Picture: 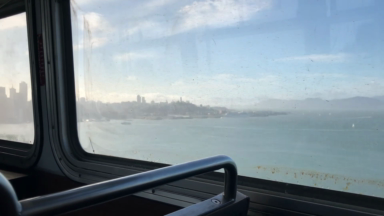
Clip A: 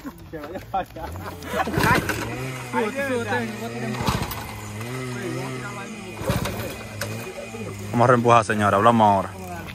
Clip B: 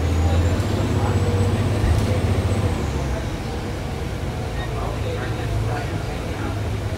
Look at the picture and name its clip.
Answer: B